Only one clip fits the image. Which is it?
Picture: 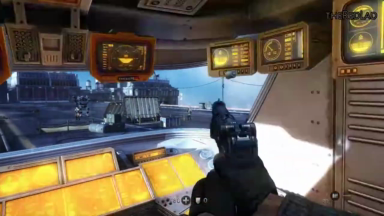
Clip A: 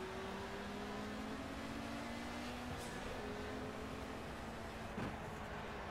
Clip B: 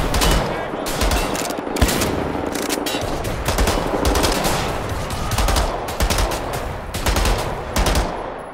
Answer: B